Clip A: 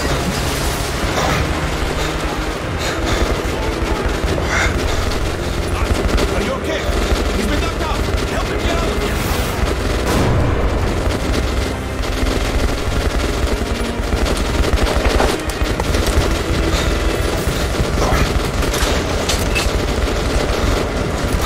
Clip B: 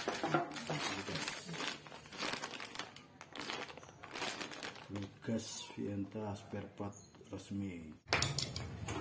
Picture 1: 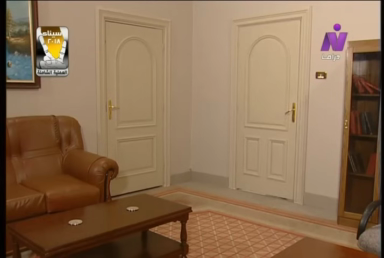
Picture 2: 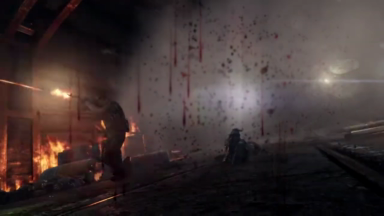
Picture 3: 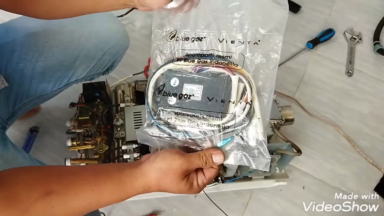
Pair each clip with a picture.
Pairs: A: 2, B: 3